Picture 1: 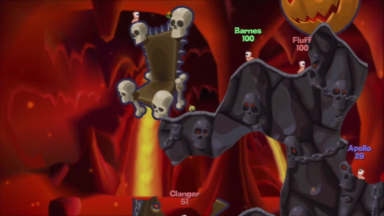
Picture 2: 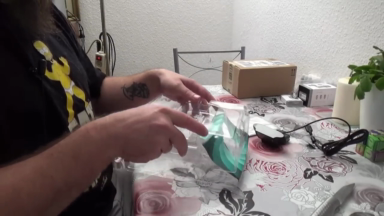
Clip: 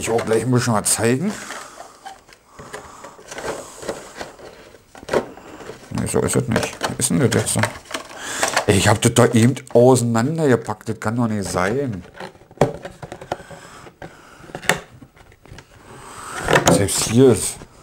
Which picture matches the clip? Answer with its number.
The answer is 2